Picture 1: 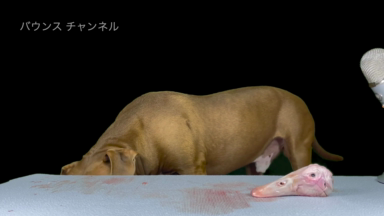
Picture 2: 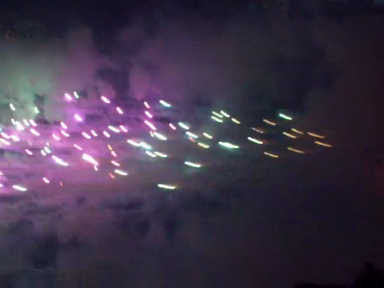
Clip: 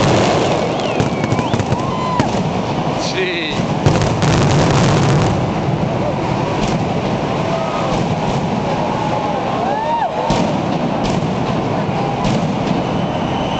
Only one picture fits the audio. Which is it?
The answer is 2